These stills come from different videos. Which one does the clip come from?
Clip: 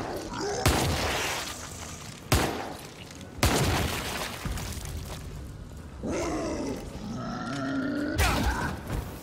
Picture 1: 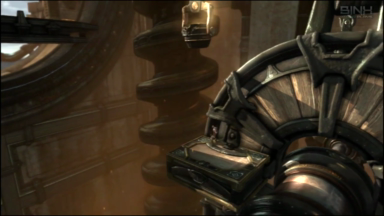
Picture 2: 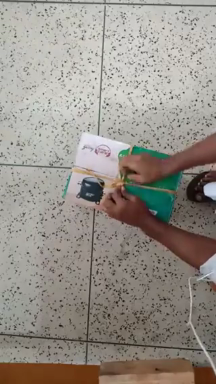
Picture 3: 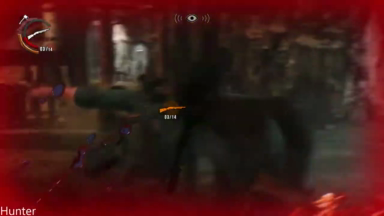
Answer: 3